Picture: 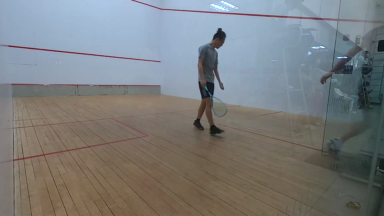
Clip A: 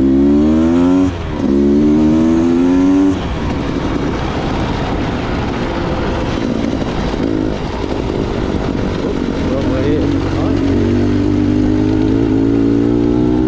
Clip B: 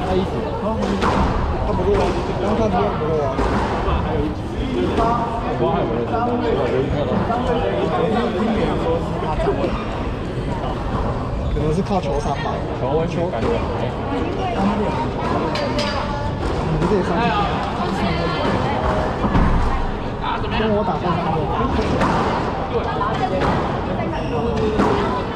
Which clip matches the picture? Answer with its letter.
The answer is B